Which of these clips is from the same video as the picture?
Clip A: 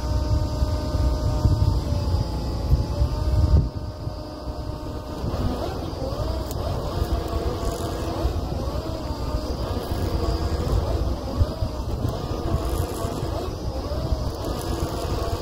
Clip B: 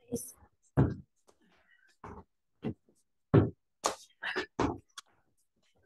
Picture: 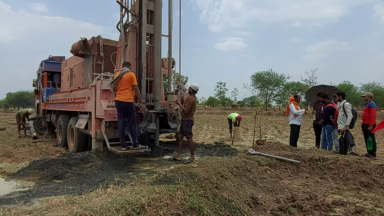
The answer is A